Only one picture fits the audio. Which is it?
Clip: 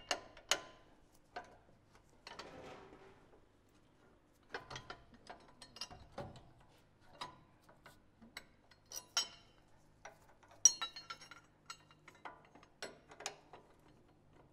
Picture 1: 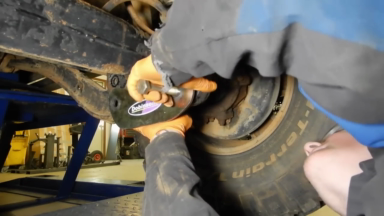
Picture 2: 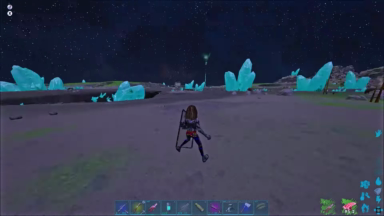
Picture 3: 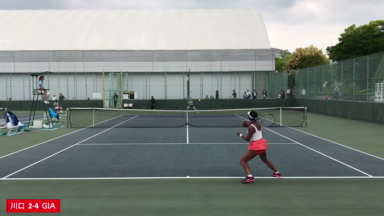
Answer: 1